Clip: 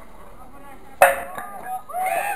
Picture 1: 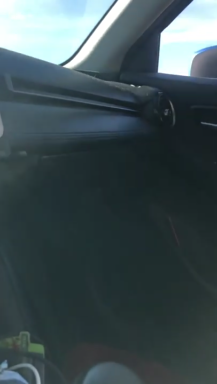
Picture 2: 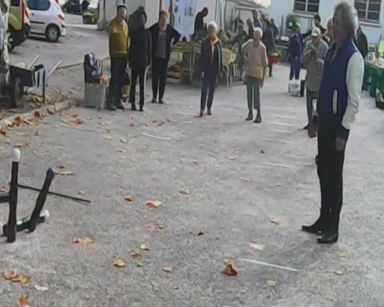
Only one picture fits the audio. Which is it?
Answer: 2